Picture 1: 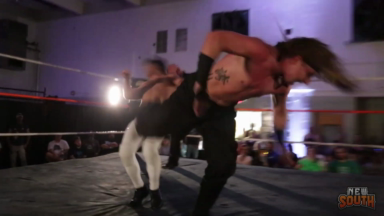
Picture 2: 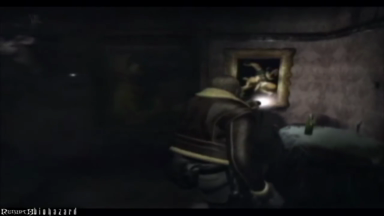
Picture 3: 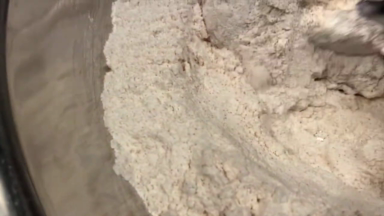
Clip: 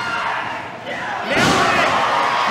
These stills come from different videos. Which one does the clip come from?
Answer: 1